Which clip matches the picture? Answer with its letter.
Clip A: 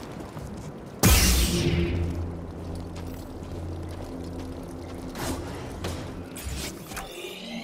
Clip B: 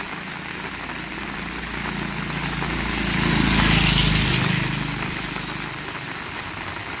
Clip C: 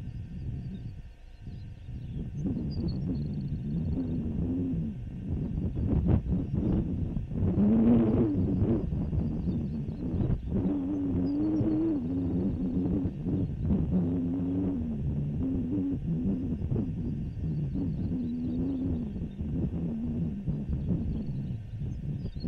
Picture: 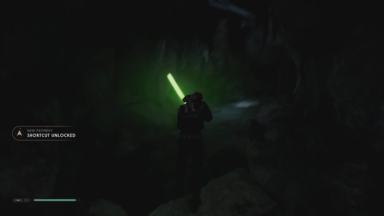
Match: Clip A